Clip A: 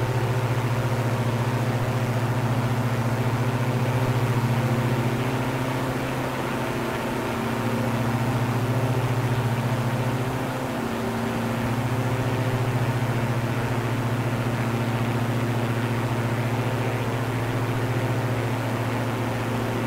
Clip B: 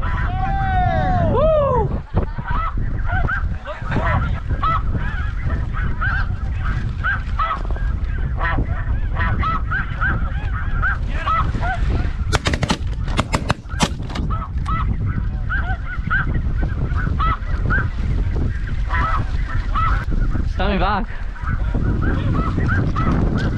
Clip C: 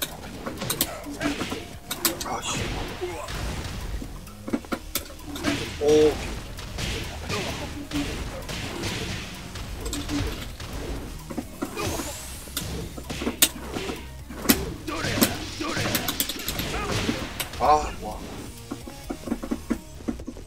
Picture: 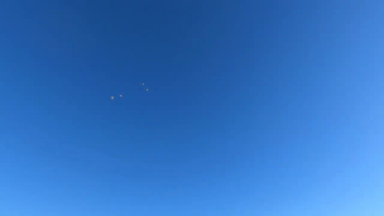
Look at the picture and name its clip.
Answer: B